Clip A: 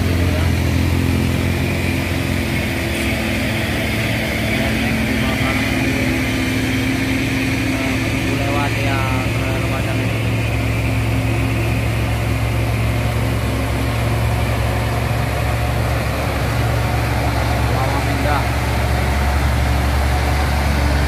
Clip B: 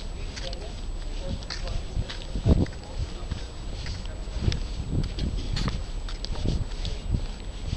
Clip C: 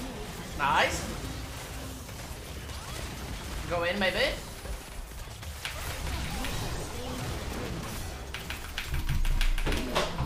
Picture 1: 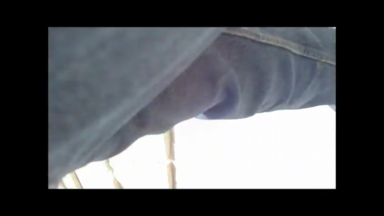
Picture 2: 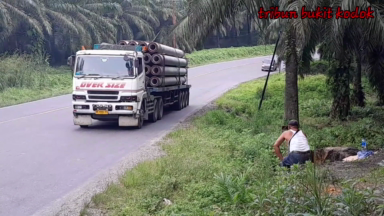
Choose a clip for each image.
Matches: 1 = B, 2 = A